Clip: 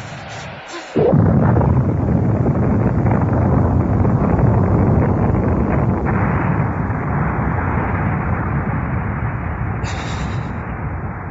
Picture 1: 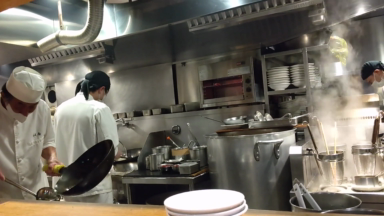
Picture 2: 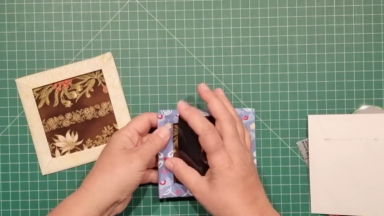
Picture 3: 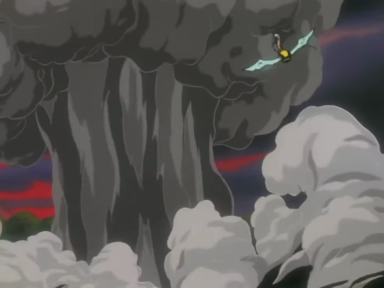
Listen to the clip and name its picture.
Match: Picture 3